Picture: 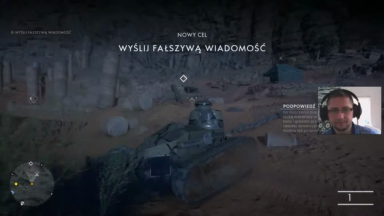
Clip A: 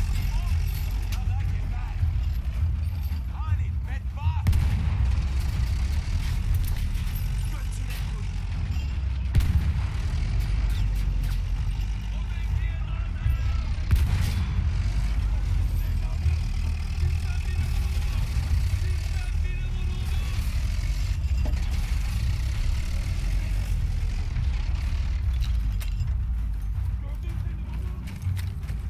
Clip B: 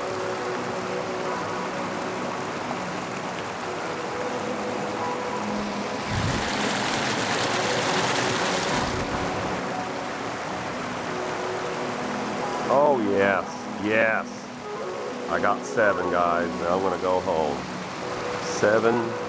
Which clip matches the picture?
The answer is A